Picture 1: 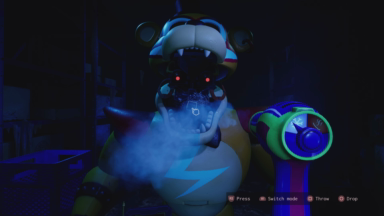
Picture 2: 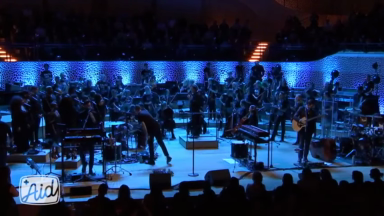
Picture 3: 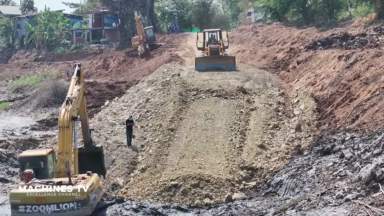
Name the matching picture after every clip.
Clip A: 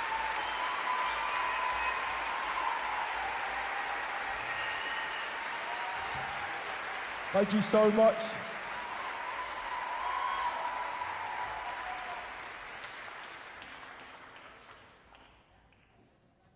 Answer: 2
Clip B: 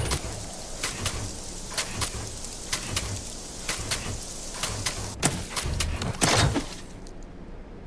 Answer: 1